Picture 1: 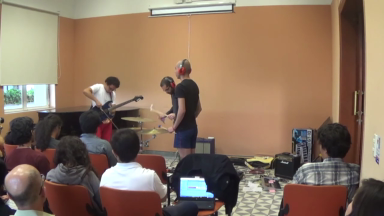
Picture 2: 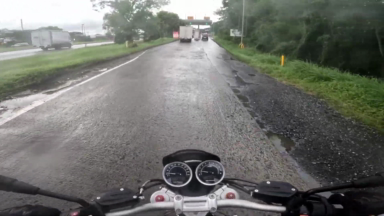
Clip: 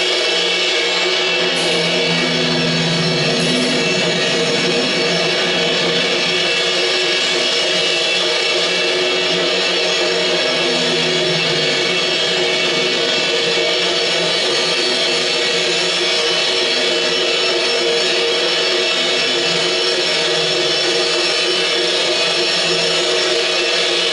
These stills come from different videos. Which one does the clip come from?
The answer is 1